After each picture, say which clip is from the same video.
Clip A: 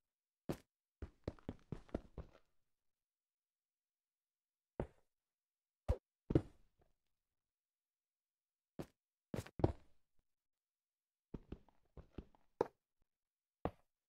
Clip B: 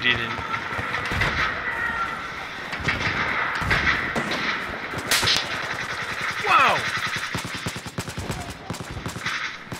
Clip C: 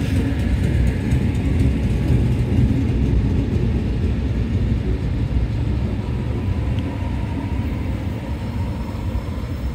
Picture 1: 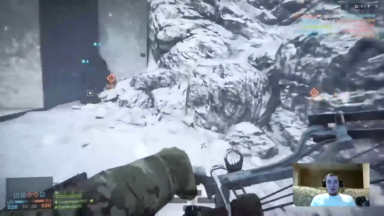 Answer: B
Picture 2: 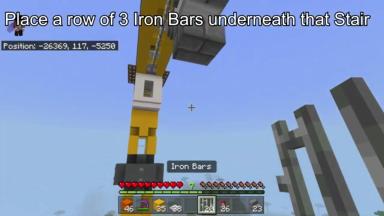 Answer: A